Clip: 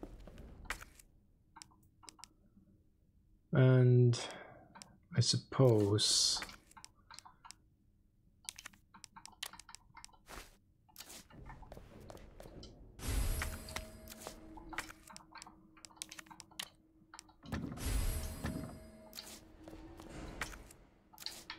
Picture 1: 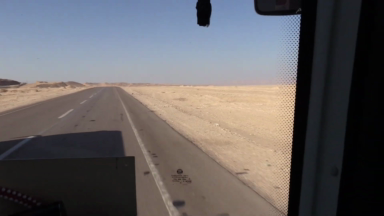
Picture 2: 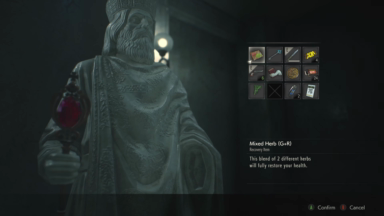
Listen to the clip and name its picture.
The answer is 2